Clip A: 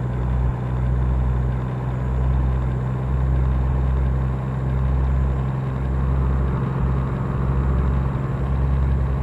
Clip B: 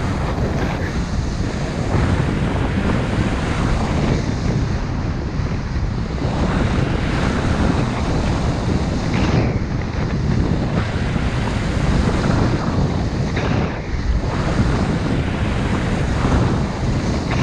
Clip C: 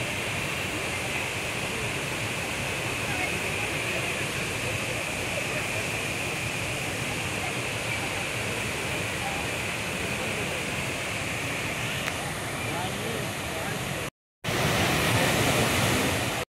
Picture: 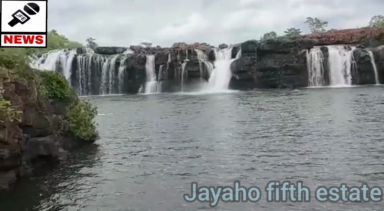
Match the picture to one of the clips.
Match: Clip C